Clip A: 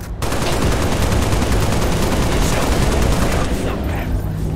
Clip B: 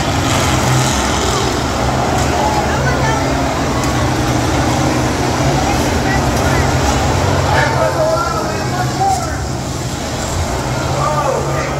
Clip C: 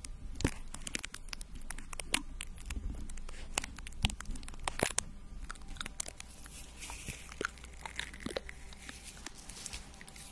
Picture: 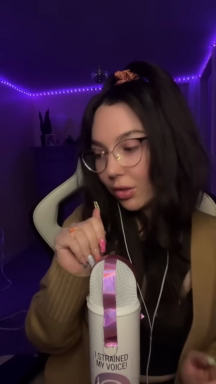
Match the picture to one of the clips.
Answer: C